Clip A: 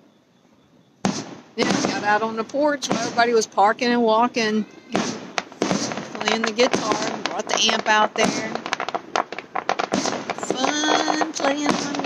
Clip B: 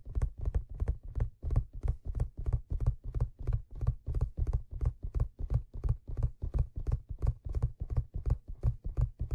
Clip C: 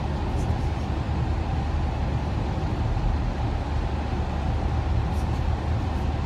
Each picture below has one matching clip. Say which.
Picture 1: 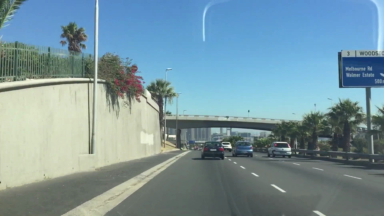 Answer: C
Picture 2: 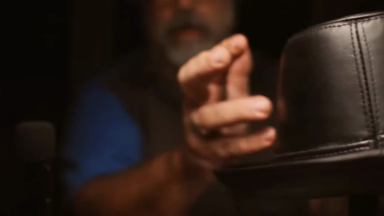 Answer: B